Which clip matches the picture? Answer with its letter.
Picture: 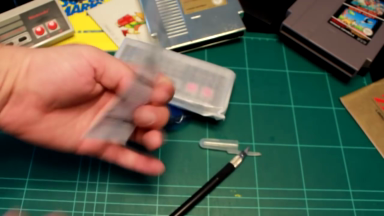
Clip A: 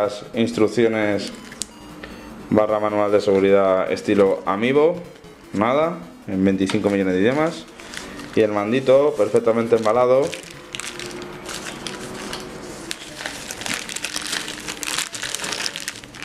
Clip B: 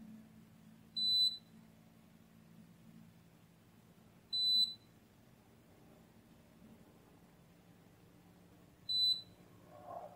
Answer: A